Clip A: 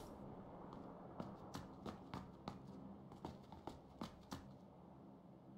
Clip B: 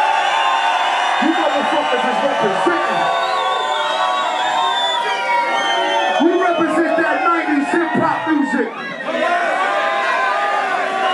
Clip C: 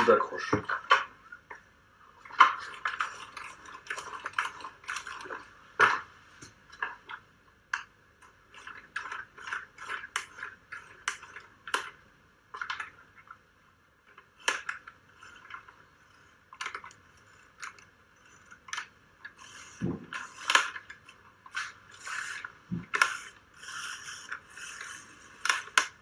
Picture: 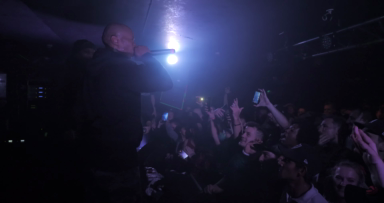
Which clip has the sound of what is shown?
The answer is B